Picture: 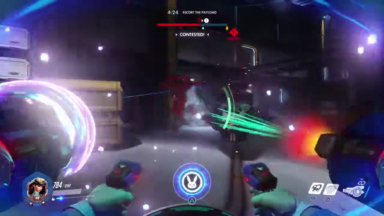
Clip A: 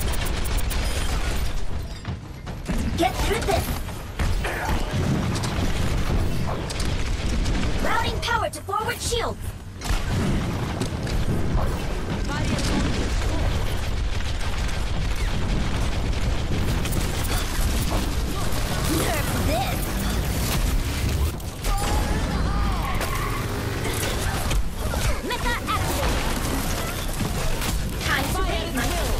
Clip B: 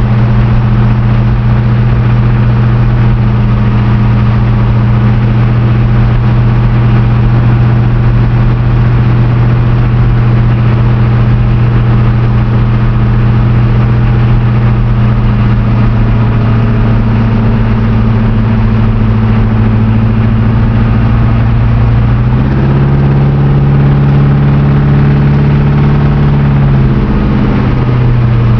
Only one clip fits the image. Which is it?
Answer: A